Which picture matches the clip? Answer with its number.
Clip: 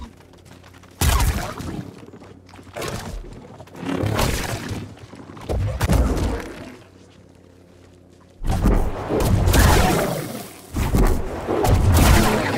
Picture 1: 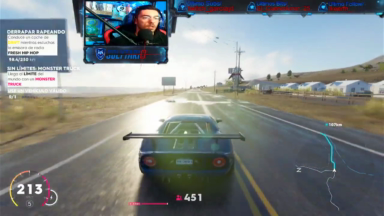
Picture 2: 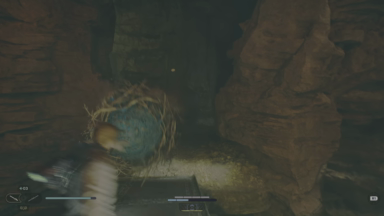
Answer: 2